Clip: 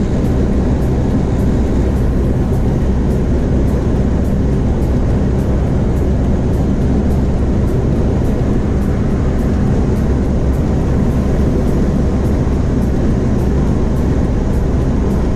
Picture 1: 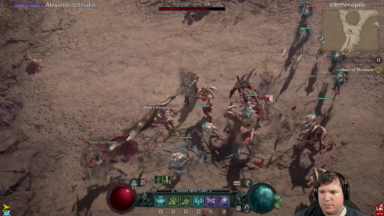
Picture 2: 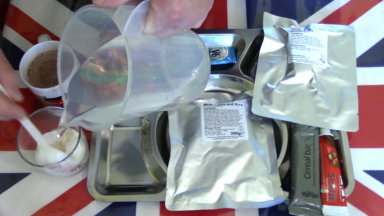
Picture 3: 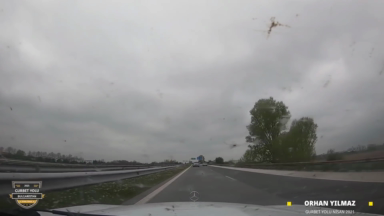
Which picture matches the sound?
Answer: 3